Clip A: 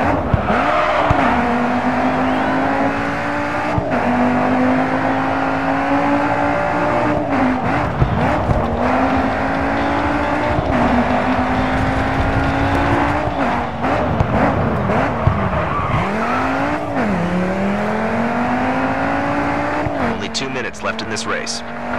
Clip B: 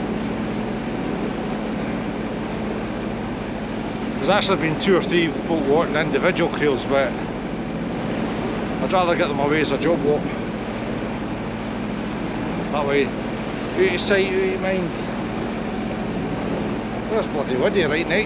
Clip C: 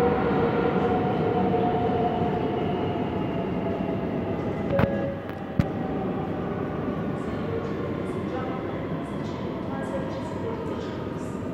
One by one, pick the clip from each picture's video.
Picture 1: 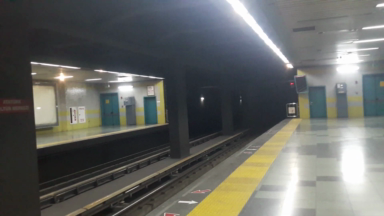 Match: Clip C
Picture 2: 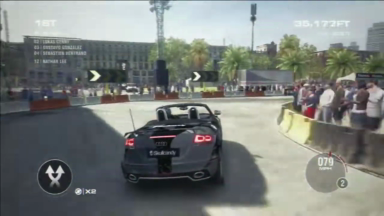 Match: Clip A